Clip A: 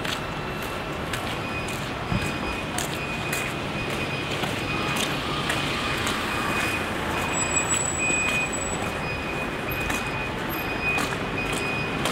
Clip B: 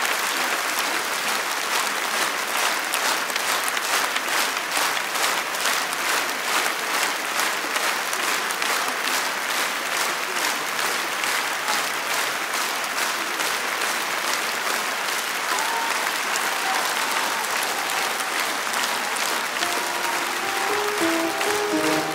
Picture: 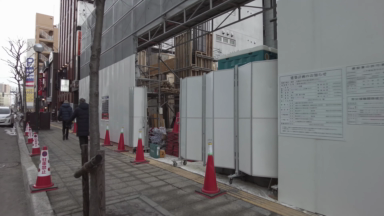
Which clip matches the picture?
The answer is A